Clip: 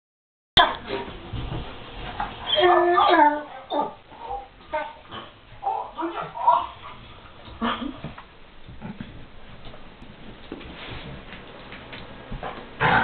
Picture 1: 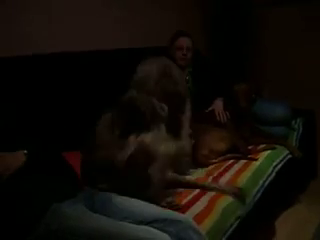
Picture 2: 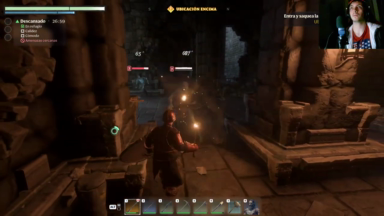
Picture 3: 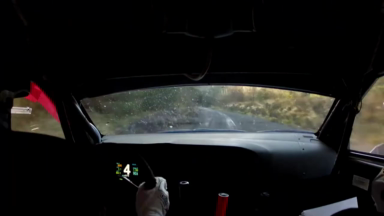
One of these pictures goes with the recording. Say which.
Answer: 1